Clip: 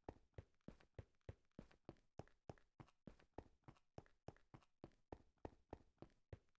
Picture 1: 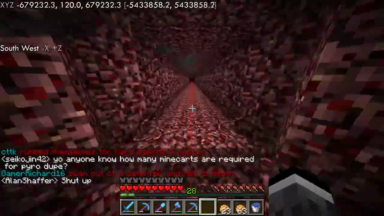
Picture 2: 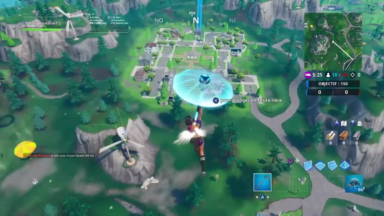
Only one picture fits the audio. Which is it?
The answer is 1